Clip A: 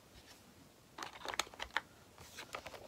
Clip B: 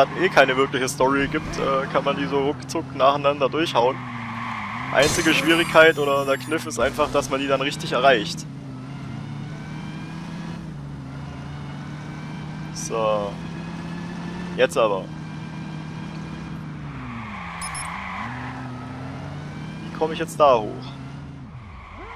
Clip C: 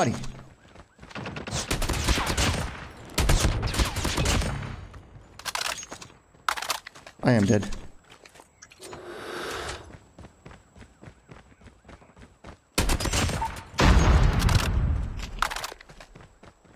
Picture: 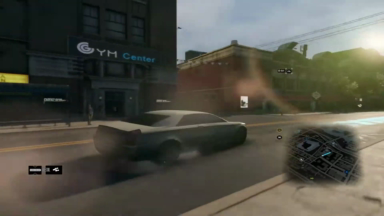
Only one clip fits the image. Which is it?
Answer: B